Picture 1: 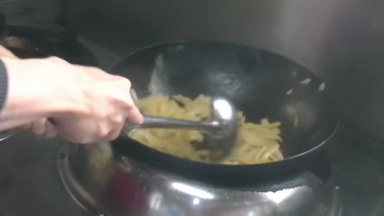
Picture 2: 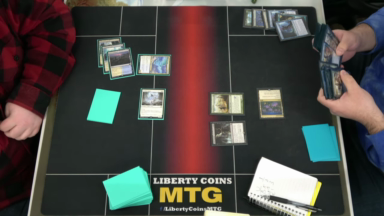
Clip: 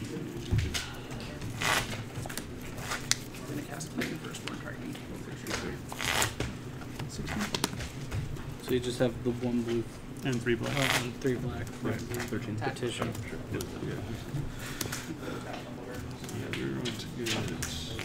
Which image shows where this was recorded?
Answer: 2